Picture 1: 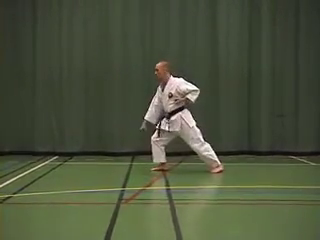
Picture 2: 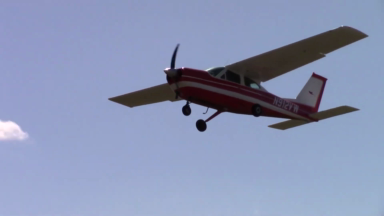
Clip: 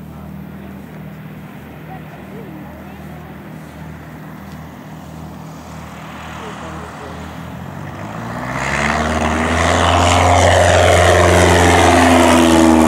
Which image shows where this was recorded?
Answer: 2